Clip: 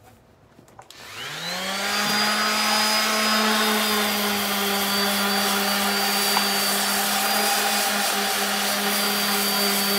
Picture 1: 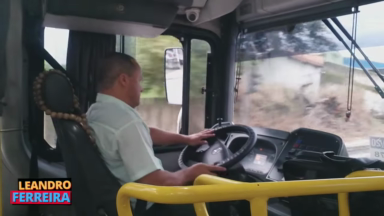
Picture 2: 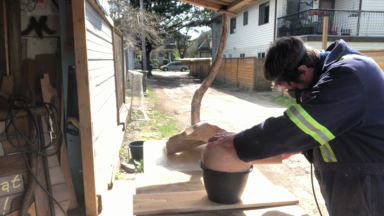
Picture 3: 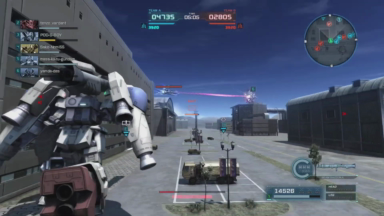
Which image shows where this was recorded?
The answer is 2